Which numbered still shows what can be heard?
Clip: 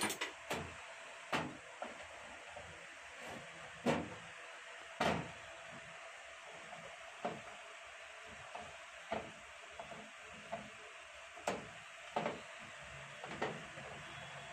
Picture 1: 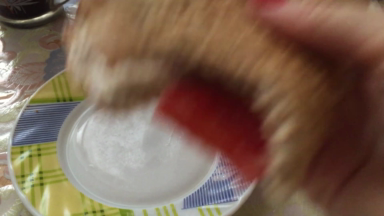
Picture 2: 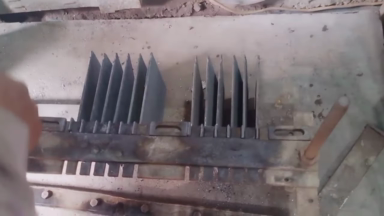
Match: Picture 2